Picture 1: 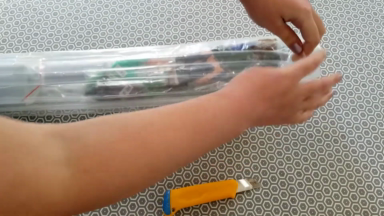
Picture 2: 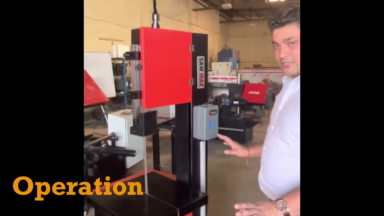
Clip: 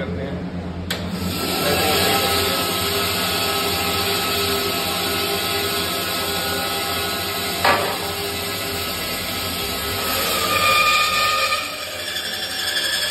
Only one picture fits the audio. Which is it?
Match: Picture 2